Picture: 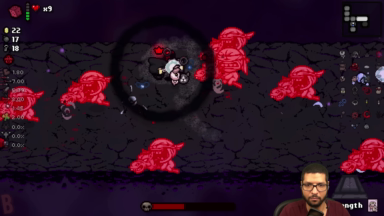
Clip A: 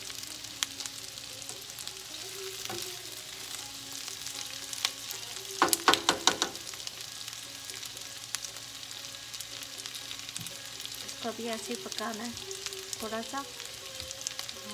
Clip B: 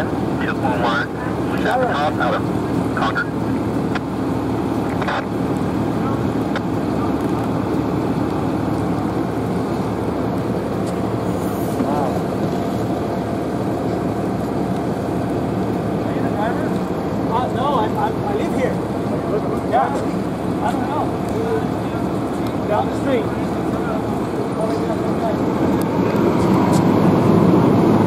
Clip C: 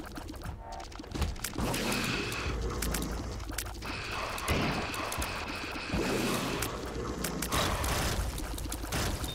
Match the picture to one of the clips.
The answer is C